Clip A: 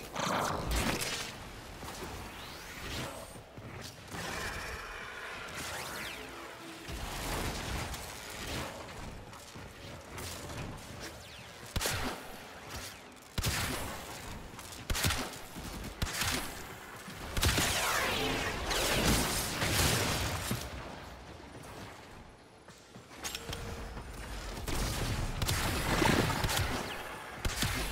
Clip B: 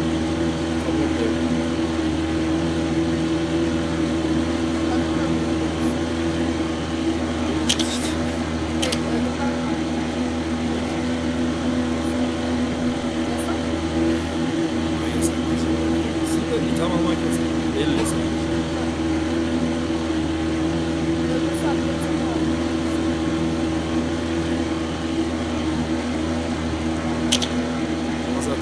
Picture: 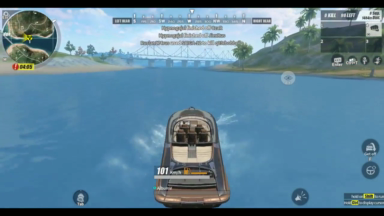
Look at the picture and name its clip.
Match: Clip B